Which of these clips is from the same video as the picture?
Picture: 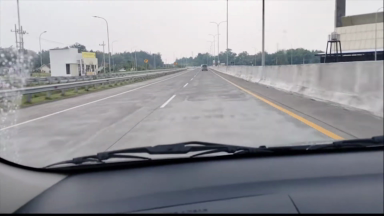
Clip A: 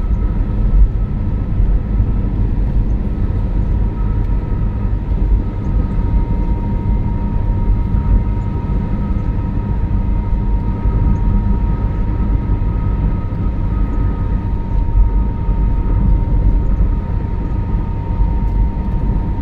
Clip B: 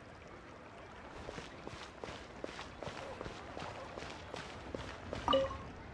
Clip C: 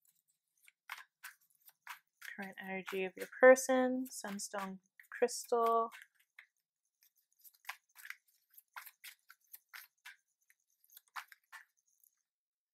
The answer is A